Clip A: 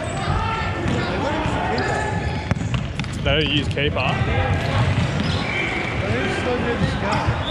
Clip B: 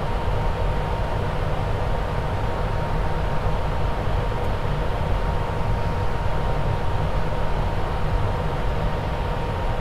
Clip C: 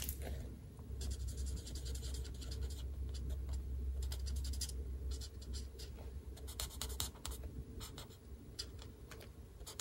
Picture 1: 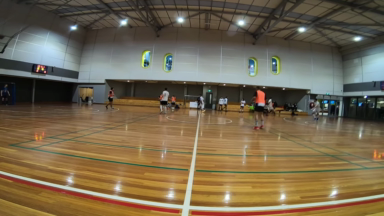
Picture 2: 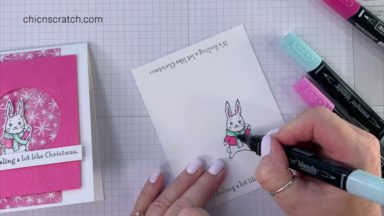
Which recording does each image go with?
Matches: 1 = A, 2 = C